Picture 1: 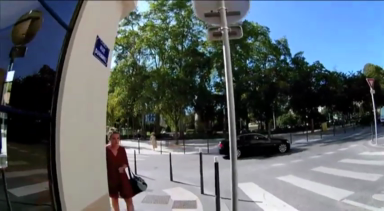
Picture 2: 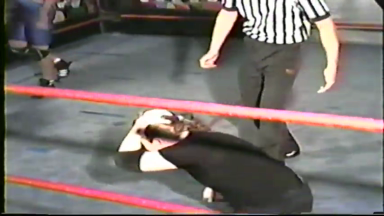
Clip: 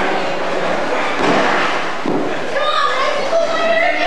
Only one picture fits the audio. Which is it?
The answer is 2